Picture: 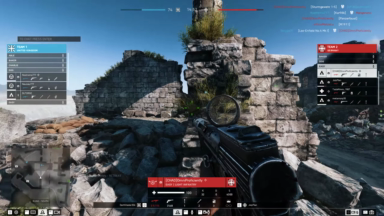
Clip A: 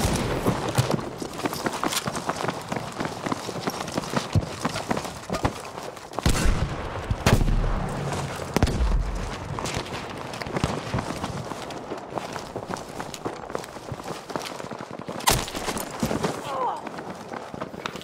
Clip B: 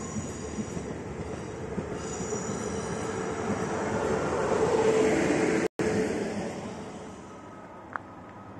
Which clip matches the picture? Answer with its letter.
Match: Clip A